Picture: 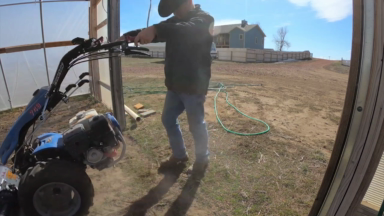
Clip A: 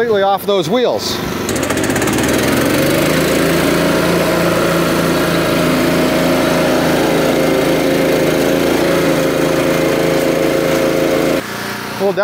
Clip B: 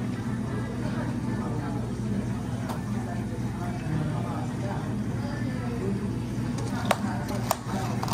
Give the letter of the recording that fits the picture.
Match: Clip A